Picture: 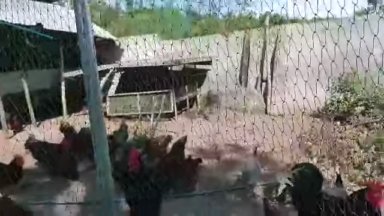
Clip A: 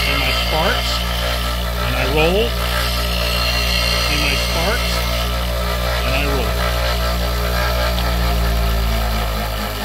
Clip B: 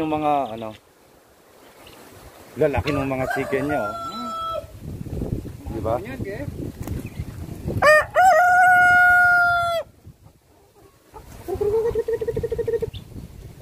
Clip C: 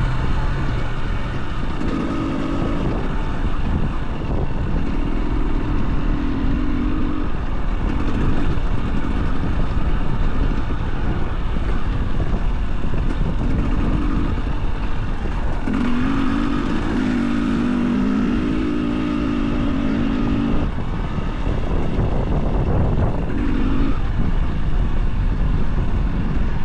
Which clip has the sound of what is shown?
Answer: B